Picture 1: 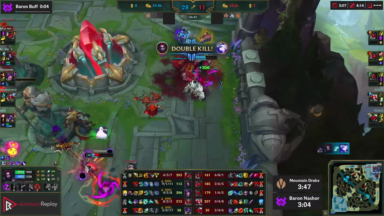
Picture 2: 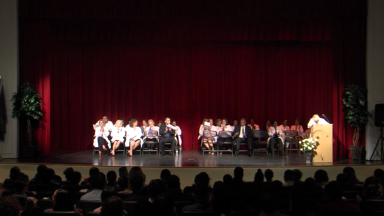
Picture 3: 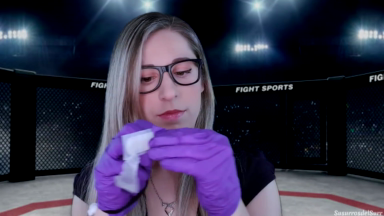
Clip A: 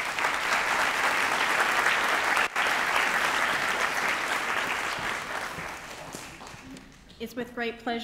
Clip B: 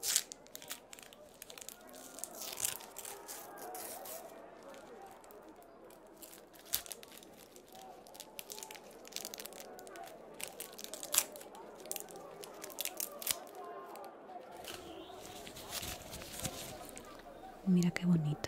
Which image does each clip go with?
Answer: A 2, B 3